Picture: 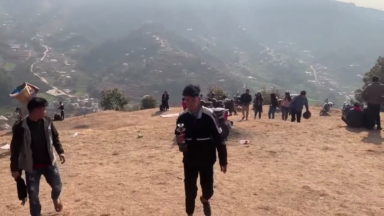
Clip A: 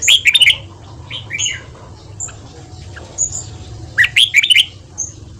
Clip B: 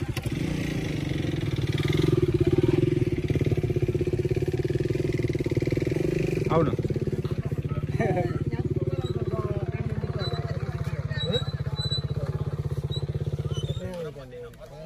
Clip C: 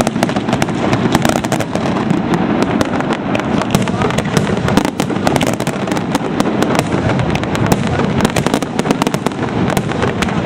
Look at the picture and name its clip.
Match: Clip B